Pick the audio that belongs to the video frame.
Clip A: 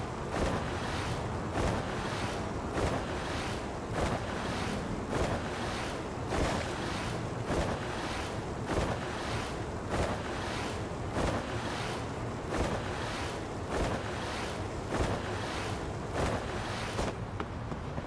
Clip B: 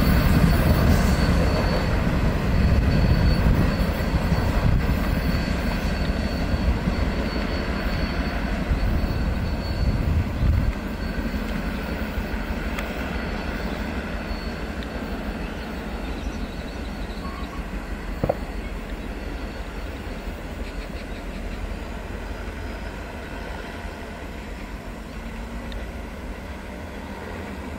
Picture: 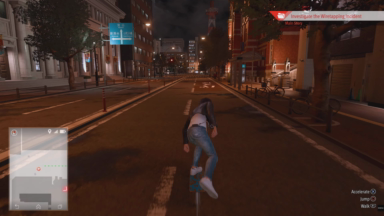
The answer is A